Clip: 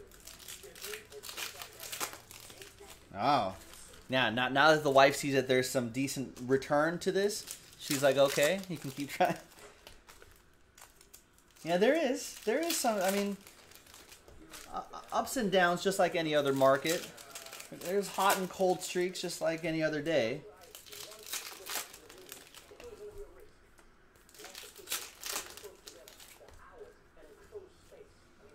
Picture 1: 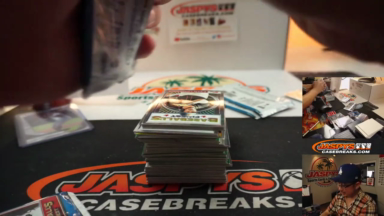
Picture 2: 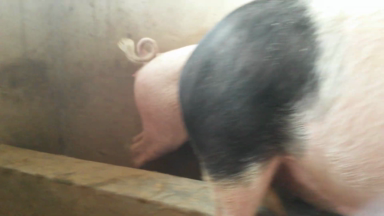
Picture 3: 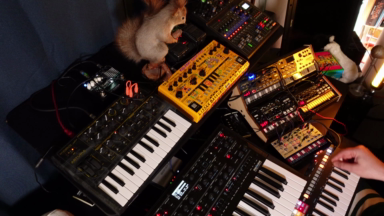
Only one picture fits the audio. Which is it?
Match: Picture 1